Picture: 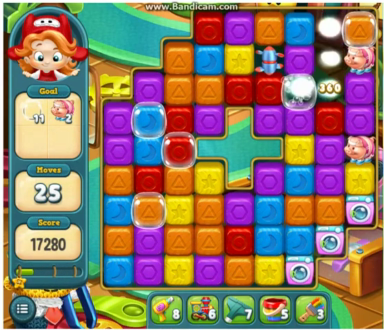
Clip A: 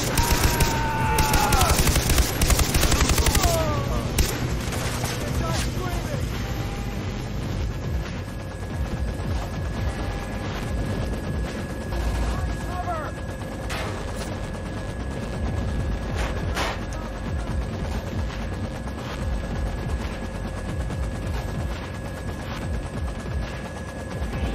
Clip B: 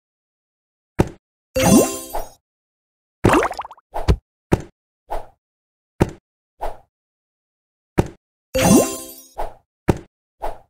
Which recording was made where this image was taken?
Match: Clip B